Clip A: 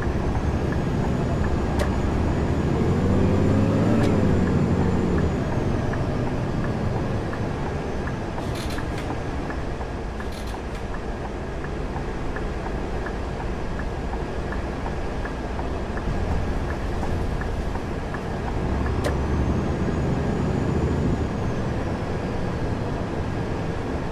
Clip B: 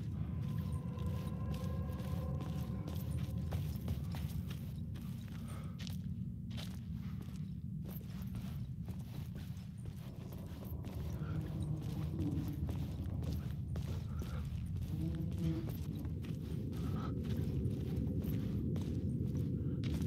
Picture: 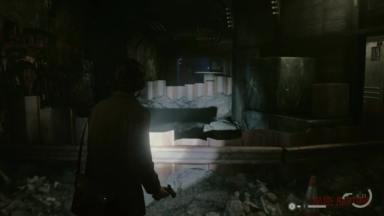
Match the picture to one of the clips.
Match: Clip B